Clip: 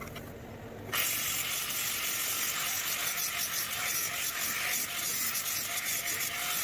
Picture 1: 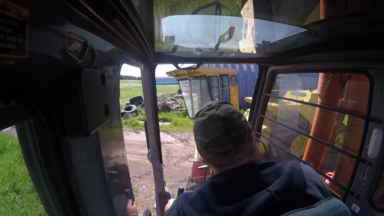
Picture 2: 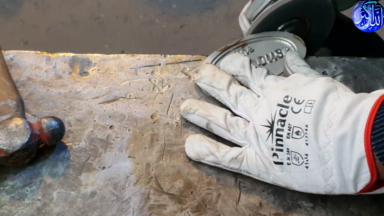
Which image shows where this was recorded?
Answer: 2